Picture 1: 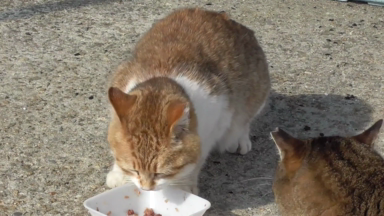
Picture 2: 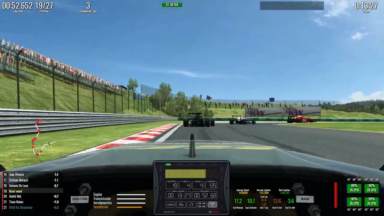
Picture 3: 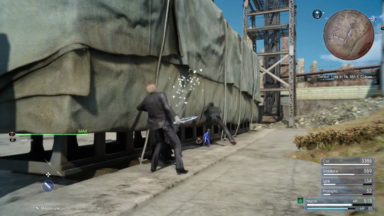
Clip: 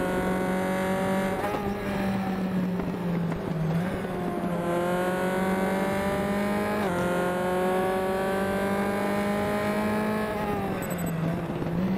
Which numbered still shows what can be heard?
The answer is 2